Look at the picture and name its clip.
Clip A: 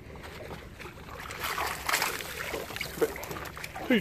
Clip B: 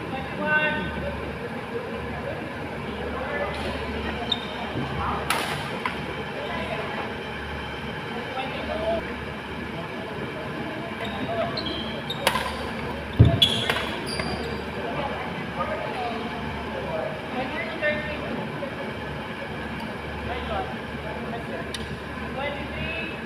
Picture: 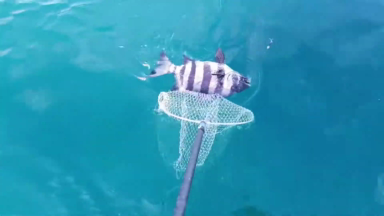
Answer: A